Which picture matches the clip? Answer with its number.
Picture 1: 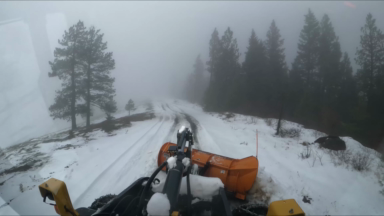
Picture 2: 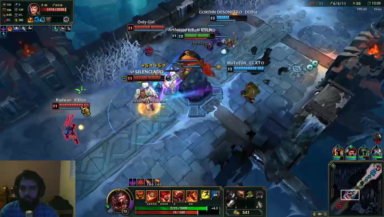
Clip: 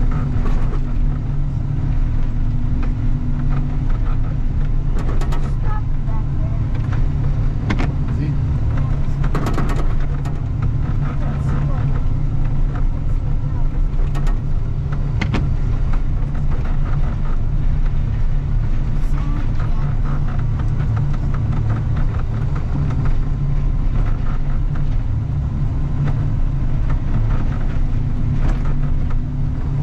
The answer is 1